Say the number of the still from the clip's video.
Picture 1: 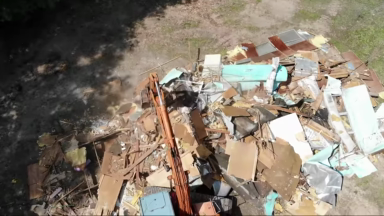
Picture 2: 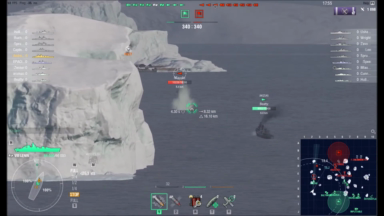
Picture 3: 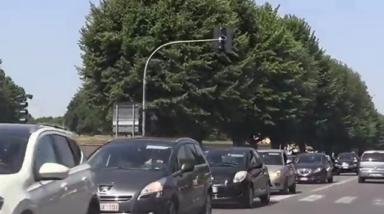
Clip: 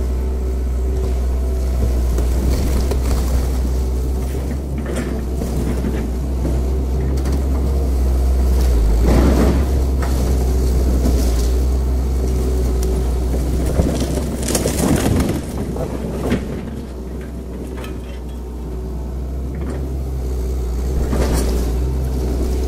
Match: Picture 1